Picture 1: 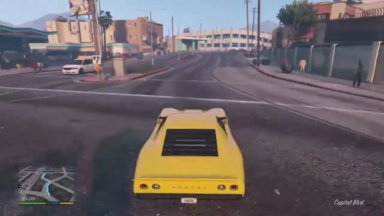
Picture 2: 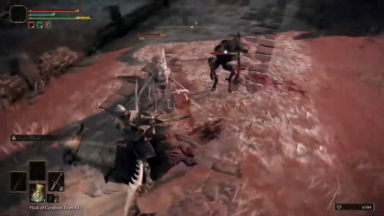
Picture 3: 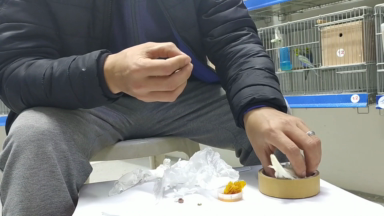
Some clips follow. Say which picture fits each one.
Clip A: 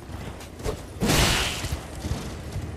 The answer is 2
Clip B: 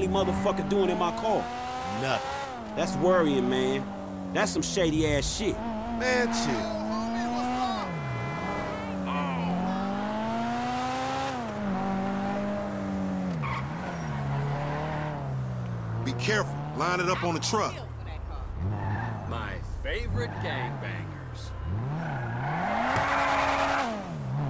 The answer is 1